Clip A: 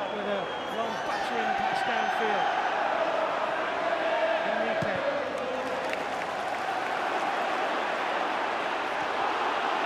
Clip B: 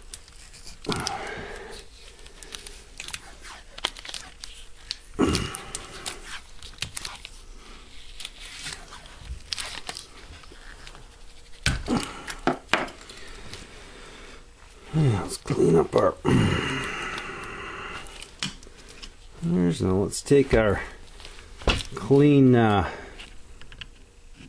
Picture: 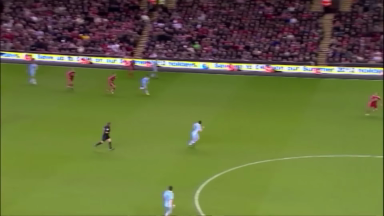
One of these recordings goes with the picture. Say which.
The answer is A